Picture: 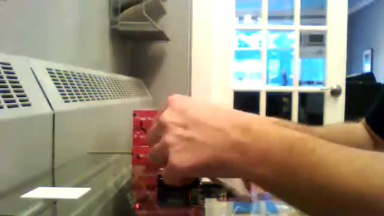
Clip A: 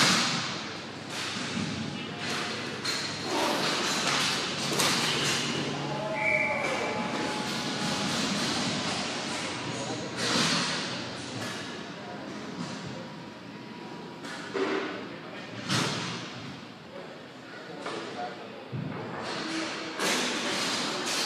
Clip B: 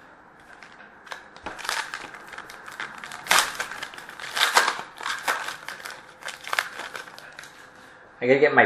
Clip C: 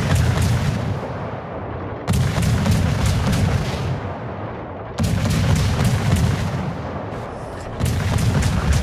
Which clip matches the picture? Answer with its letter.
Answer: B